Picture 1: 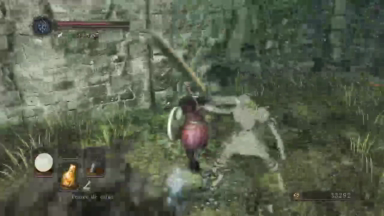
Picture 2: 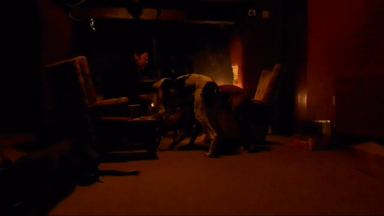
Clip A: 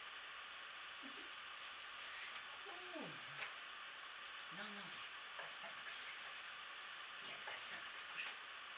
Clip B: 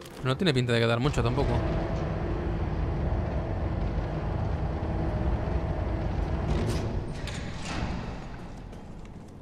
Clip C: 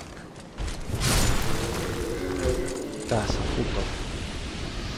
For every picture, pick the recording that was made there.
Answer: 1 C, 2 A